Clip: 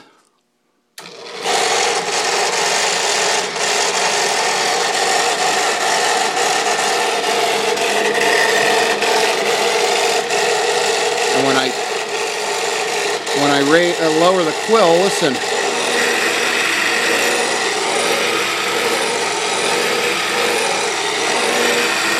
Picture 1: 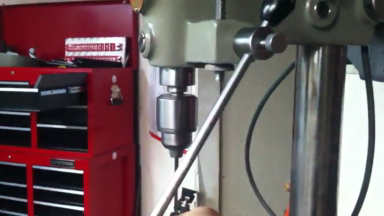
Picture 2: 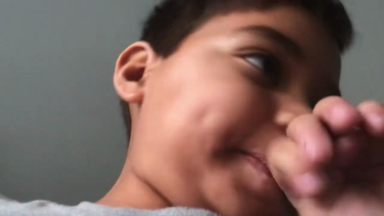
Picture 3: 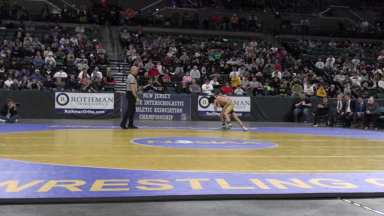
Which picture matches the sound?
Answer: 1